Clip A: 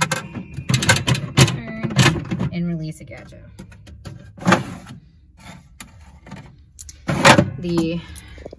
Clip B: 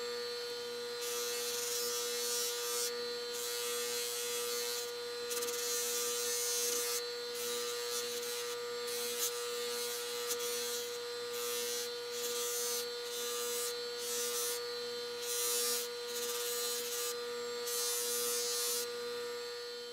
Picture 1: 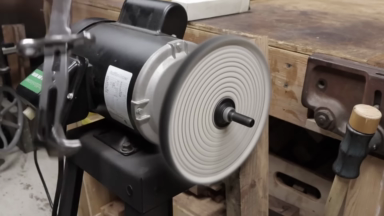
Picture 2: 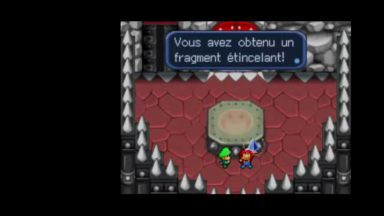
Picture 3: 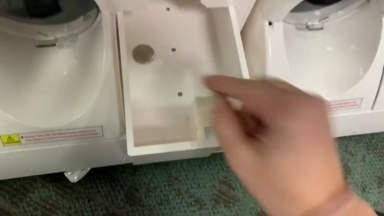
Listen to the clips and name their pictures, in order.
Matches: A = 3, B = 1